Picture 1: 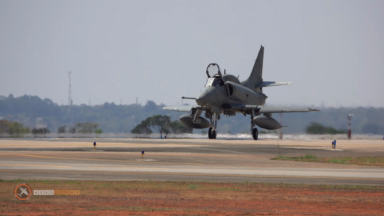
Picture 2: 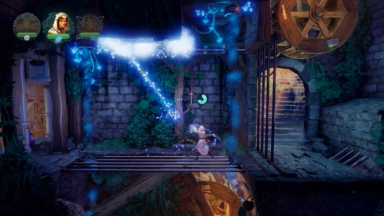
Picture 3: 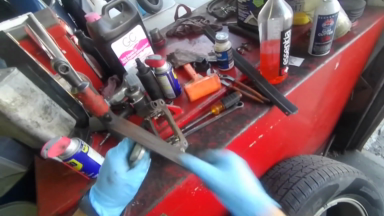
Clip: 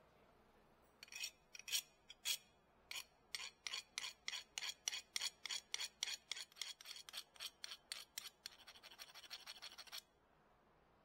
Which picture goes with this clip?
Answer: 3